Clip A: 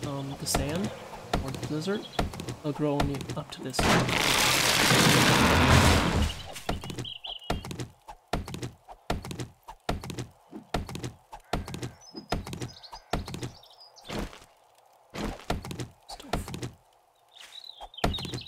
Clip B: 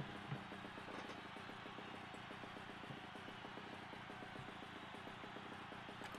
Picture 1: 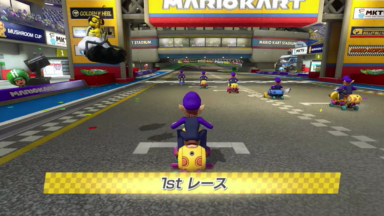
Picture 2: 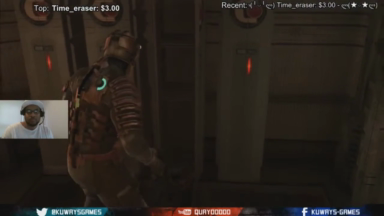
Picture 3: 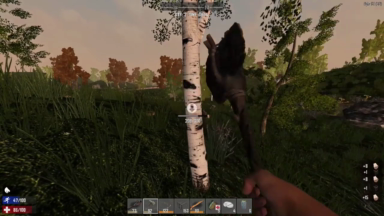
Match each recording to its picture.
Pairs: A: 3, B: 1